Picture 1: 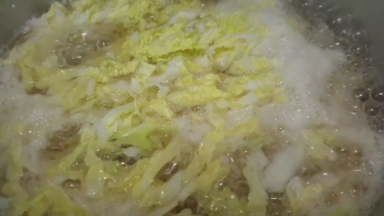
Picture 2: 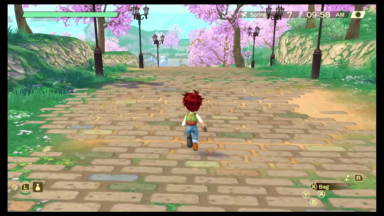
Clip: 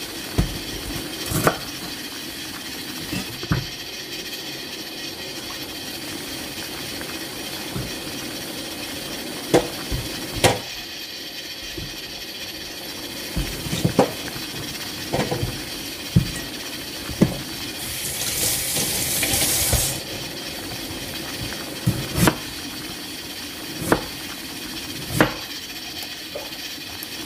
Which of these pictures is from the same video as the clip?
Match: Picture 1